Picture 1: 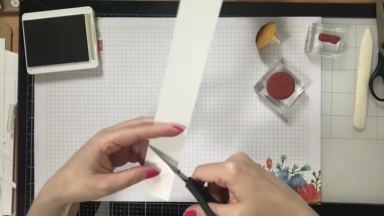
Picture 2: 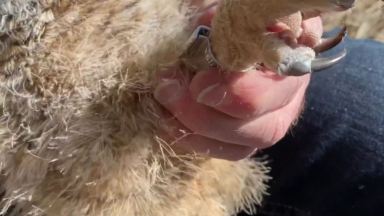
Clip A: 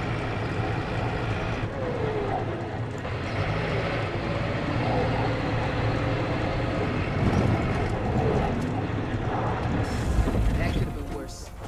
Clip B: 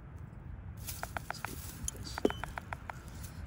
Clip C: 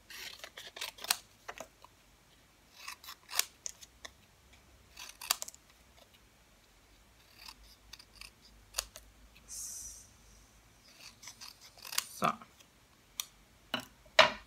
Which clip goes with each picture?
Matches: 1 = C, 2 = B